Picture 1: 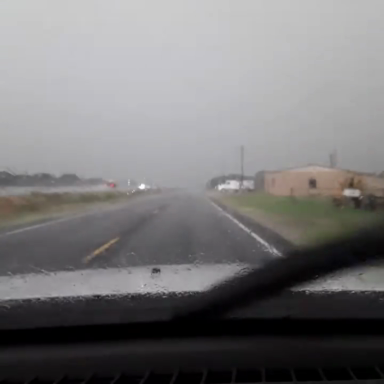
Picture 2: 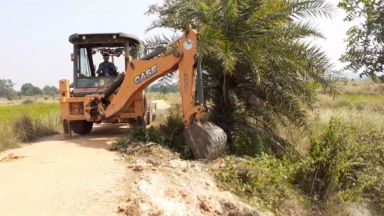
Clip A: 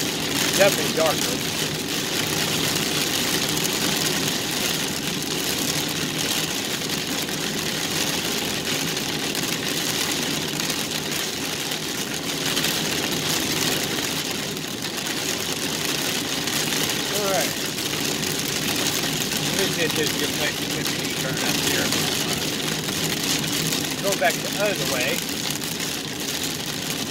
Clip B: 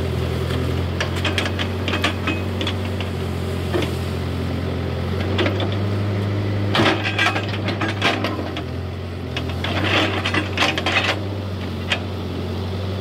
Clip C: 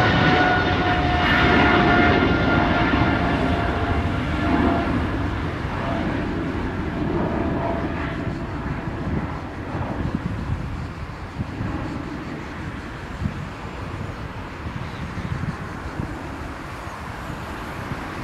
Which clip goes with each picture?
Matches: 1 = A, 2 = B